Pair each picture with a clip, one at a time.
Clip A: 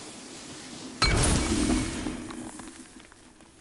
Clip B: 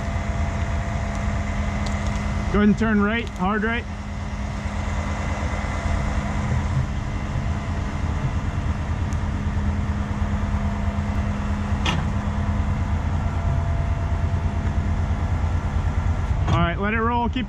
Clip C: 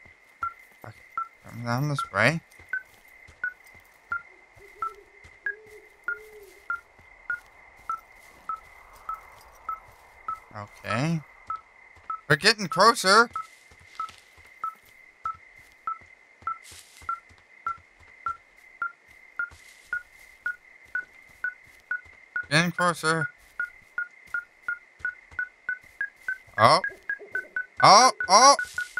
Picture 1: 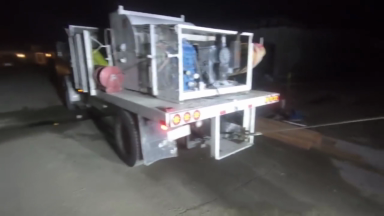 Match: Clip B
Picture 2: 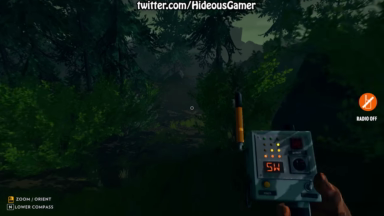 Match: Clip C